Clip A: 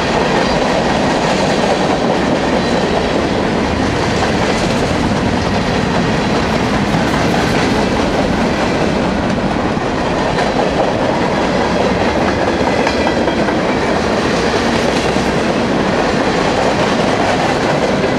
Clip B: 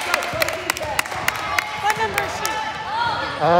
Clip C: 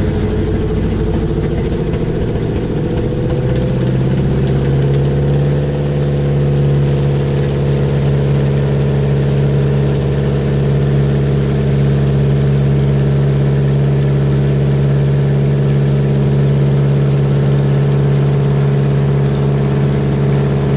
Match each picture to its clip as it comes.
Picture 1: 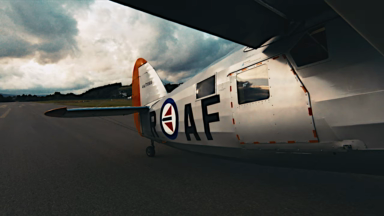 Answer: C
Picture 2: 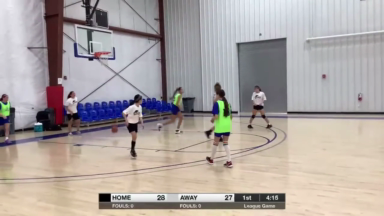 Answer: B